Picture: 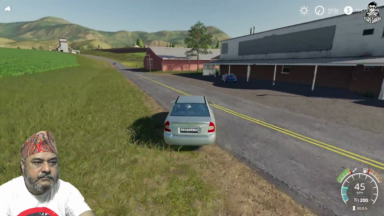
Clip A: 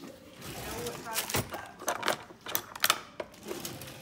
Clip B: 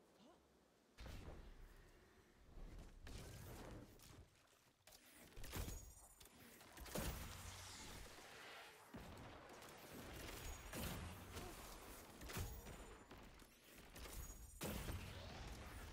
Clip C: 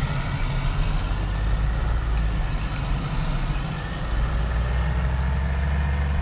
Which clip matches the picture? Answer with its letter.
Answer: C